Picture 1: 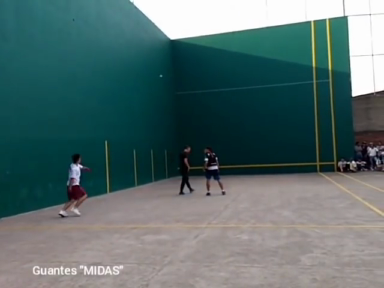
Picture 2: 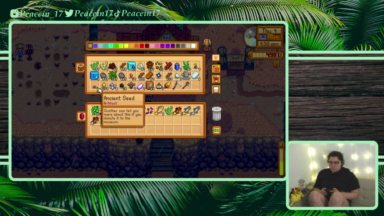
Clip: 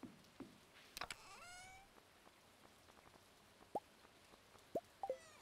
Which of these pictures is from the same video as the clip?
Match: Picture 2